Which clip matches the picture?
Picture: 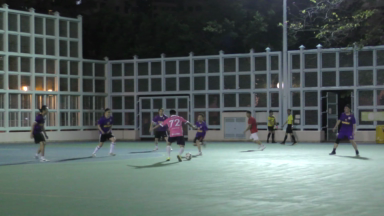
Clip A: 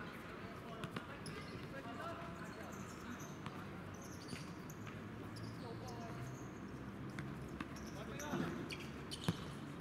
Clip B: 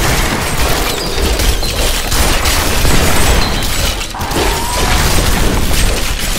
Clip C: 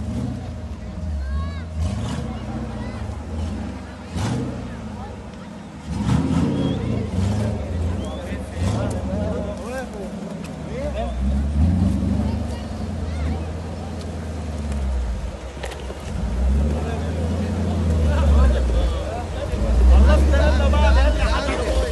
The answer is A